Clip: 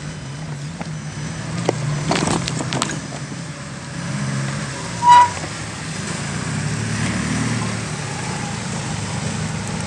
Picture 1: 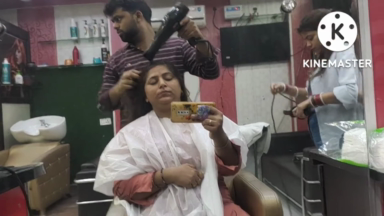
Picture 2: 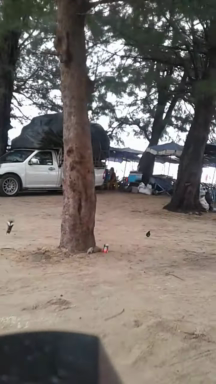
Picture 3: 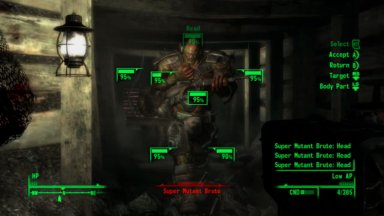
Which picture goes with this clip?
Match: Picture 2